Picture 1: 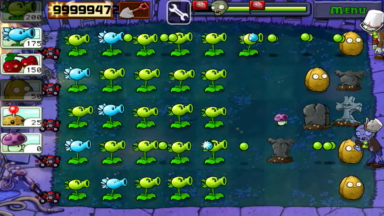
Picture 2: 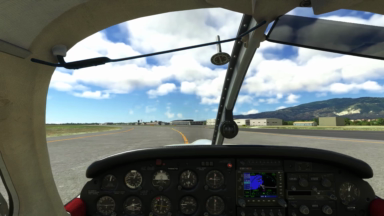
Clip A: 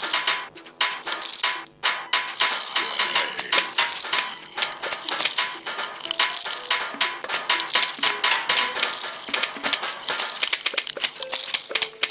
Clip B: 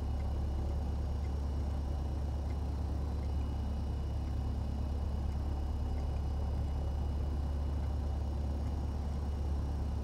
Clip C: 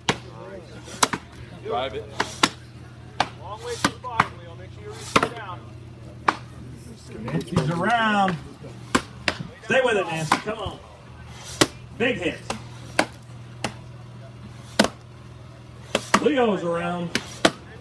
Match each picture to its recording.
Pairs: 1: A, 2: B